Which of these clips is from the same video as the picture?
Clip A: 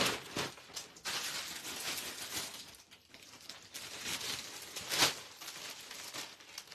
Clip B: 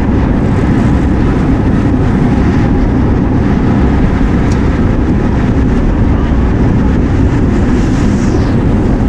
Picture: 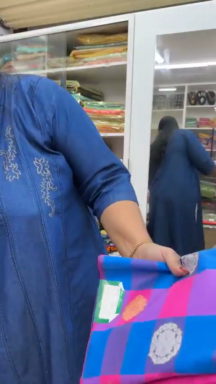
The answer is A